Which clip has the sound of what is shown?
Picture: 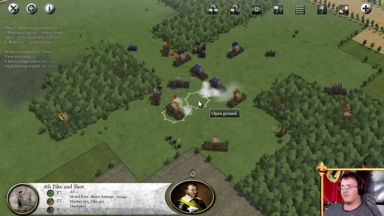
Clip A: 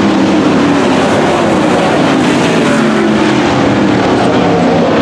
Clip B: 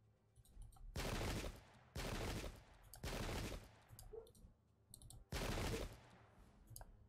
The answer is B